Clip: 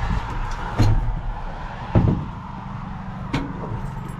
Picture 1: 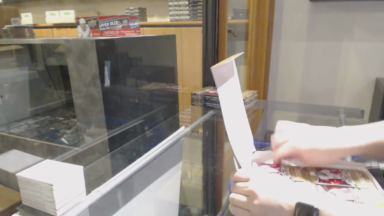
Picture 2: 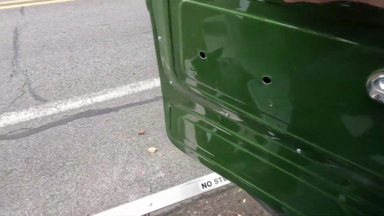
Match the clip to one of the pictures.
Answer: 2